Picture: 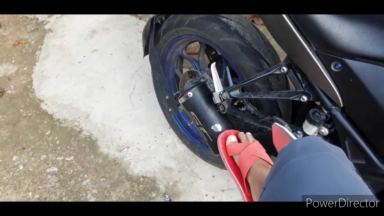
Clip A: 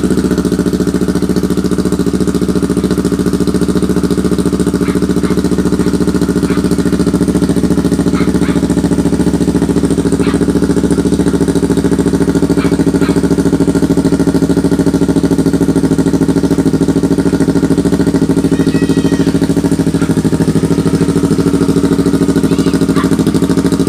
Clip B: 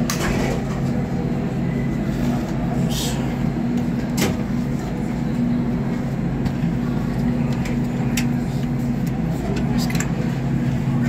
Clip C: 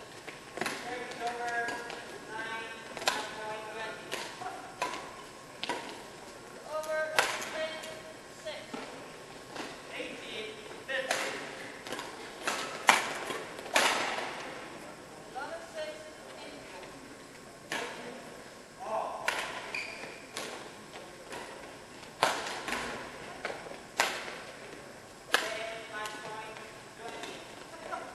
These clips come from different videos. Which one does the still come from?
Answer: A